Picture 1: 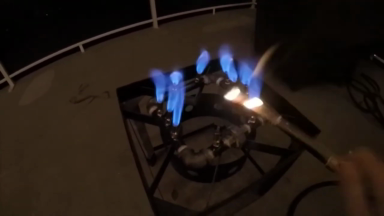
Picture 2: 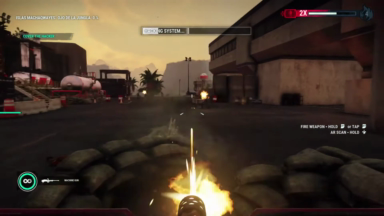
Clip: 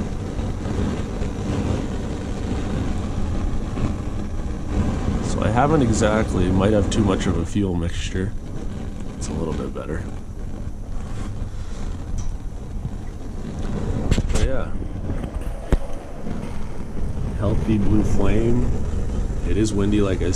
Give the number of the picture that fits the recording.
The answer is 1